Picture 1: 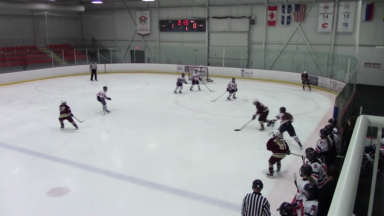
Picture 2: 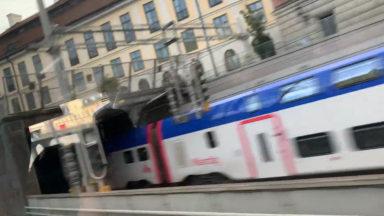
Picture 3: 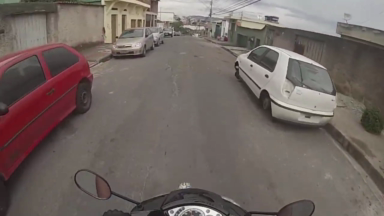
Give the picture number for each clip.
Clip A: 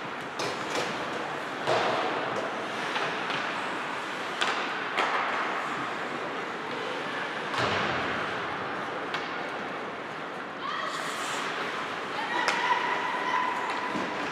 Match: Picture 1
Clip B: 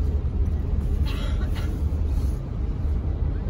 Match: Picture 2